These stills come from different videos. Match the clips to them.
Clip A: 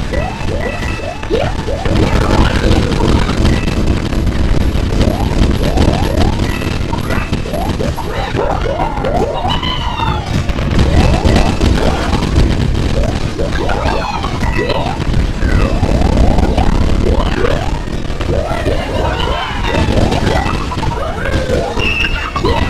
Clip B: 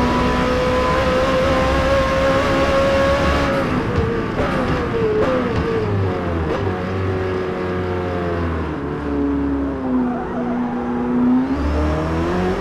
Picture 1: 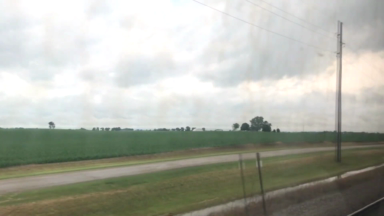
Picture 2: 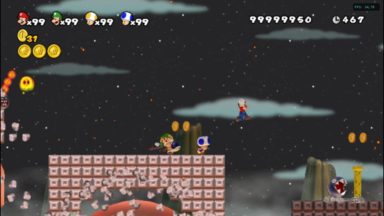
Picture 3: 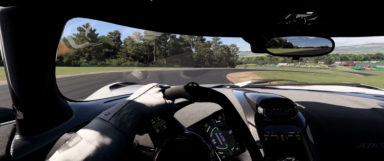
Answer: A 2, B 3